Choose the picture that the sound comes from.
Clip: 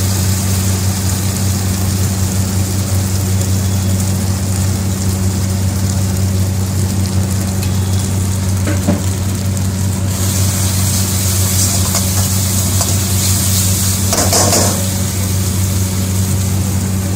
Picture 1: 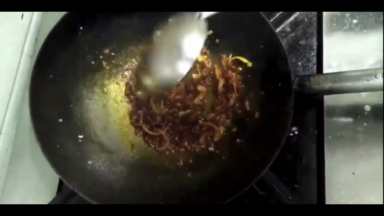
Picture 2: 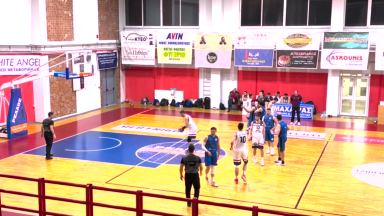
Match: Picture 1